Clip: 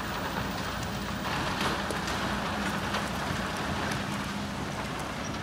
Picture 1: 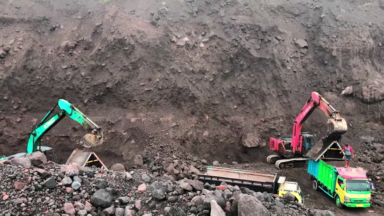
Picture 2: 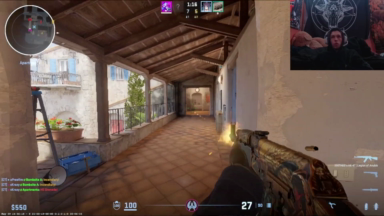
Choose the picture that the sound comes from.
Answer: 1